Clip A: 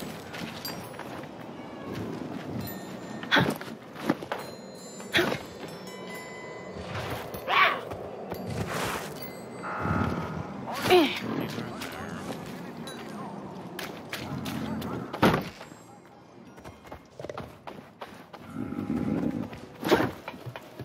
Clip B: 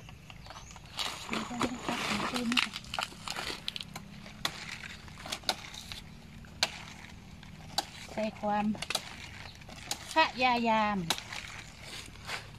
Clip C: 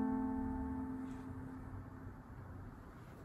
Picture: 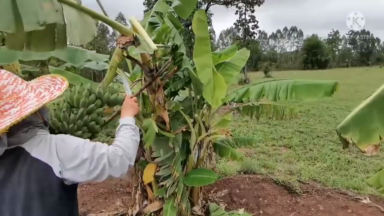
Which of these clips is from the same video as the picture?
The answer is B